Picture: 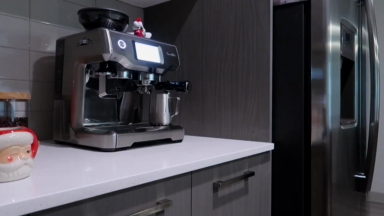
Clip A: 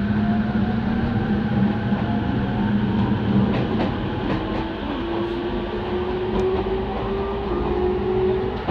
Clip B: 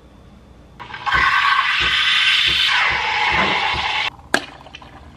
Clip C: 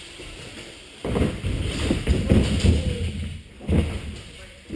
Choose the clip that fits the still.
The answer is B